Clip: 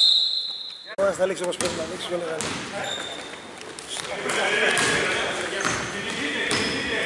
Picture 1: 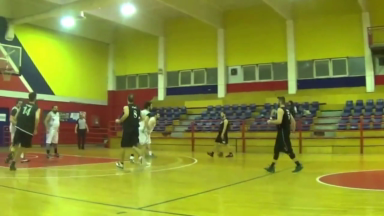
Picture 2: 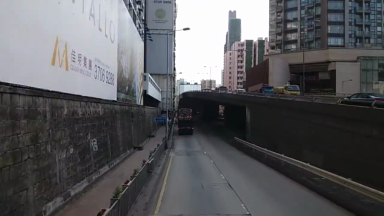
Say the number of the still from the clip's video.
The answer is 1